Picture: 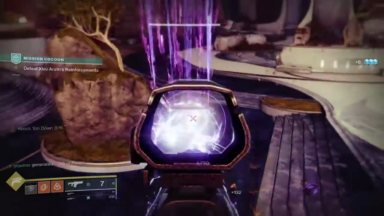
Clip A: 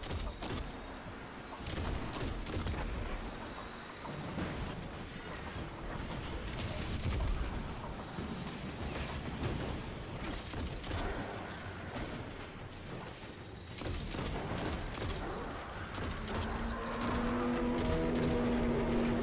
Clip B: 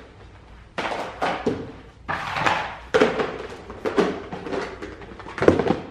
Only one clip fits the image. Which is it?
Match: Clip A